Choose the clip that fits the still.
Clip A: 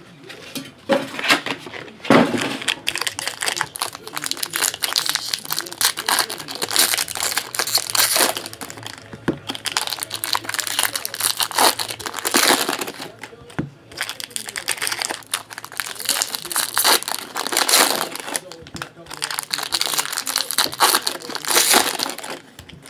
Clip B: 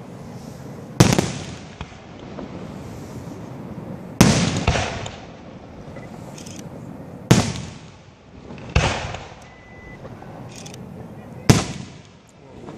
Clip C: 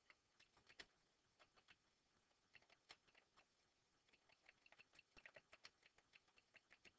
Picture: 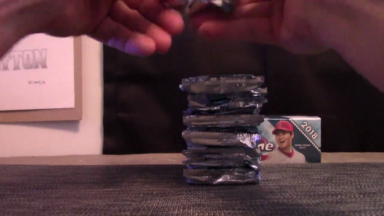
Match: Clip A